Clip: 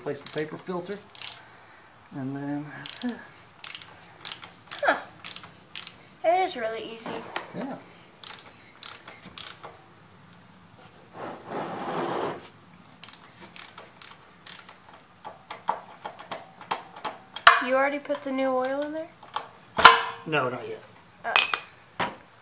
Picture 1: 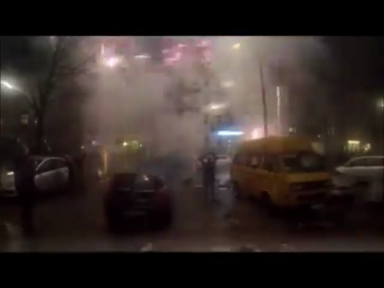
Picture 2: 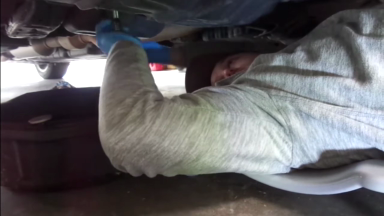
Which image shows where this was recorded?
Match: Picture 2